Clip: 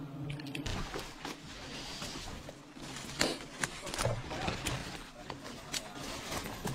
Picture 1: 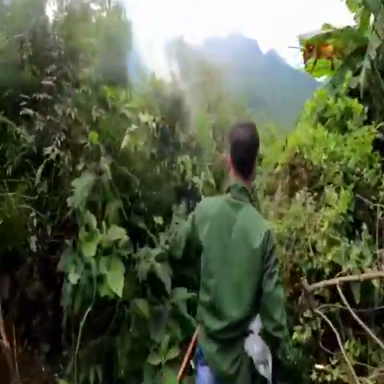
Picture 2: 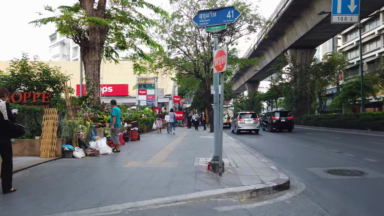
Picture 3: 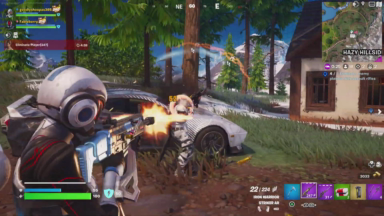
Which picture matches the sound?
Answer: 1